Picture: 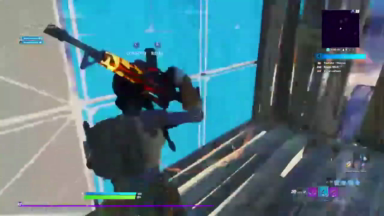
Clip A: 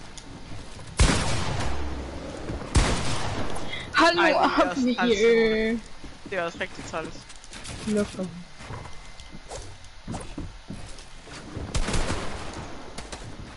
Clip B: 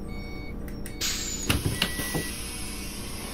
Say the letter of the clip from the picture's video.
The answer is A